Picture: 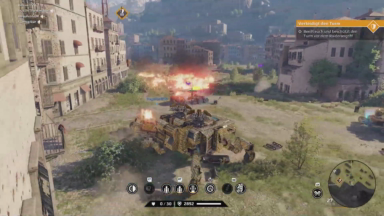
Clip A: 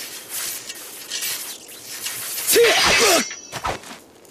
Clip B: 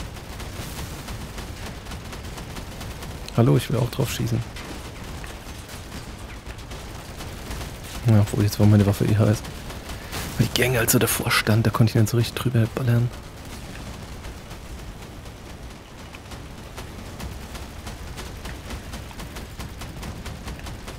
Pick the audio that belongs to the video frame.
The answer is B